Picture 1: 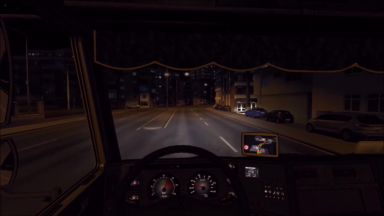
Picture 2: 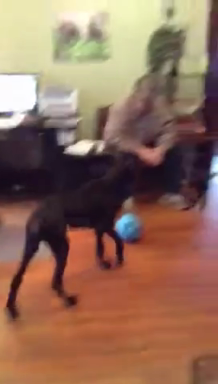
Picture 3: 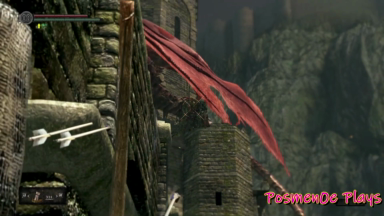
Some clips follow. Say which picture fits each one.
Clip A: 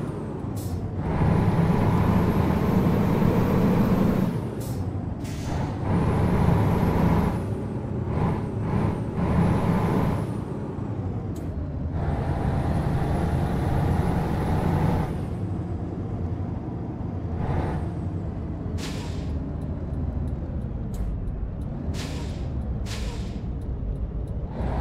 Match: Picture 1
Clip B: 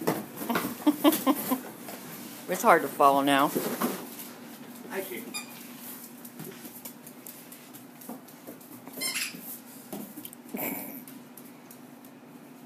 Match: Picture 2